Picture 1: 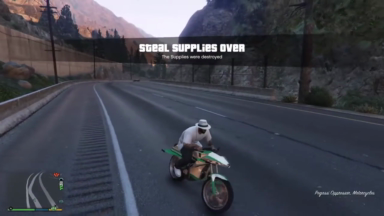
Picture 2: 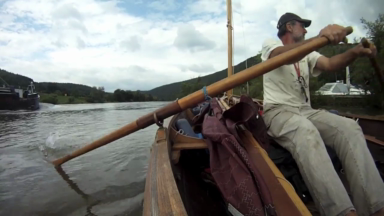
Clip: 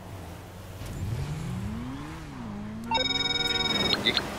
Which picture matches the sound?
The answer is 1